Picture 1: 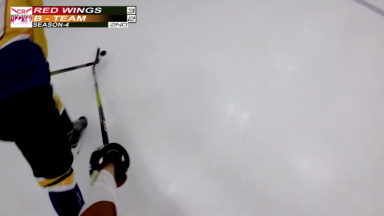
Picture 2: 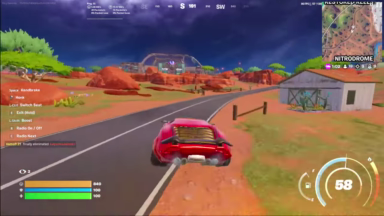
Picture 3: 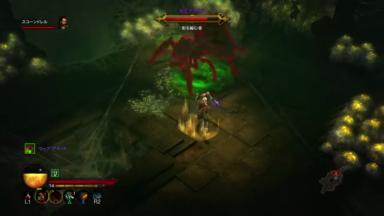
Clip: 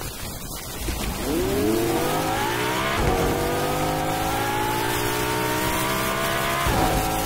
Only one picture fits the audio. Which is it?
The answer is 2